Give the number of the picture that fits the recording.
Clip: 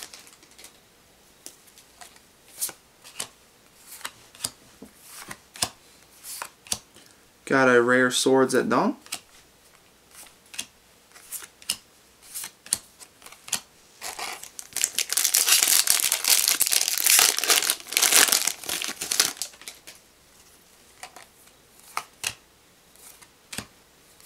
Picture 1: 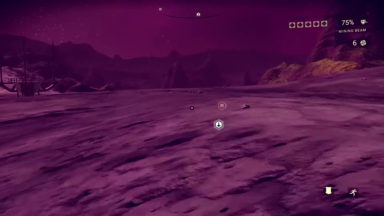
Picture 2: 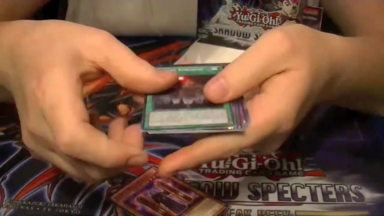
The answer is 2